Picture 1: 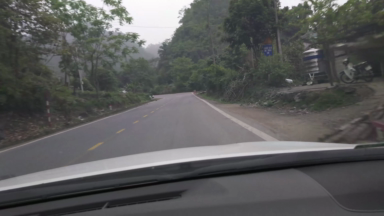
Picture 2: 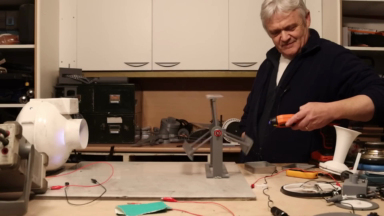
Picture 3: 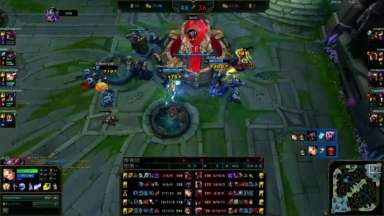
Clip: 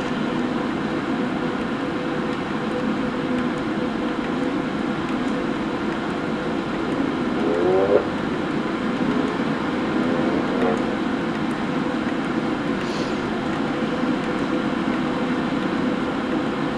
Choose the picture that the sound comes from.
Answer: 2